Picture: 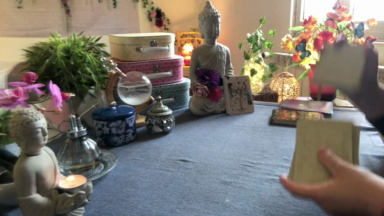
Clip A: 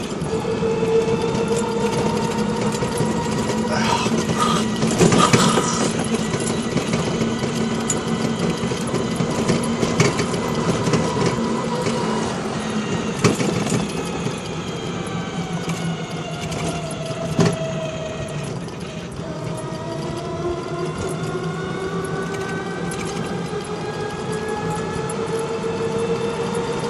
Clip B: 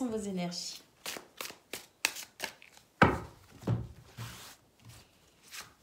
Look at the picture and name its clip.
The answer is B